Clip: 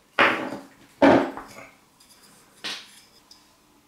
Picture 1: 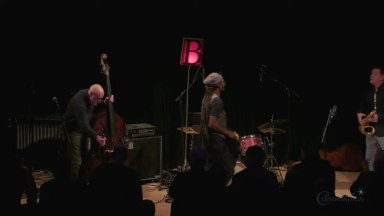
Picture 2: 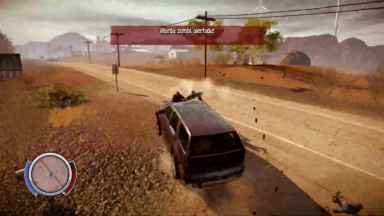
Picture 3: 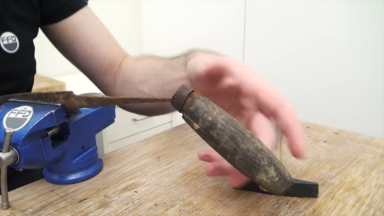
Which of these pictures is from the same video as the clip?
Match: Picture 3